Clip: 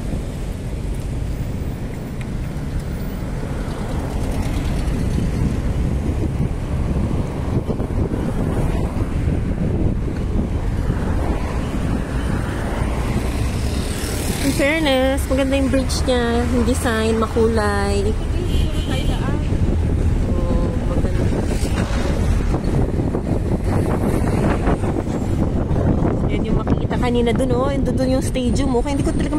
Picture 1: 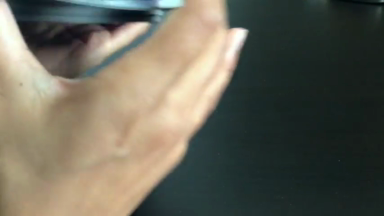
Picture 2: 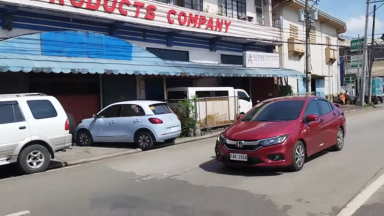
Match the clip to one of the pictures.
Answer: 2